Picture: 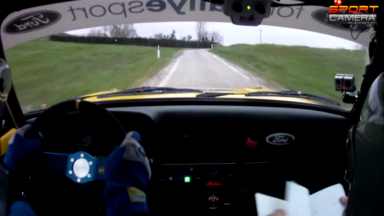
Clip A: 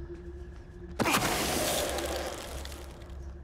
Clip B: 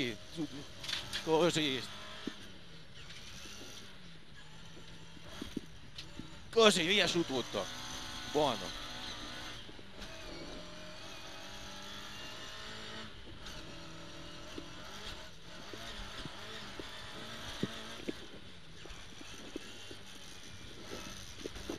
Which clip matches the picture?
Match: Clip B